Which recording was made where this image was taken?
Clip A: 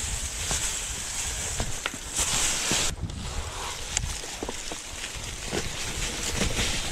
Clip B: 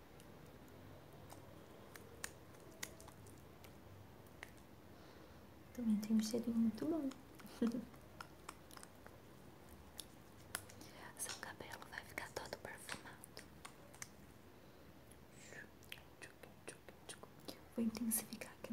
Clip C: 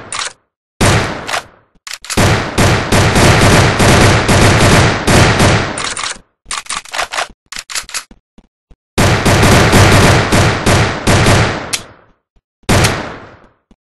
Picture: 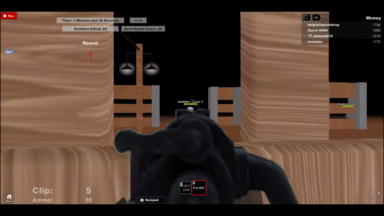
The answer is C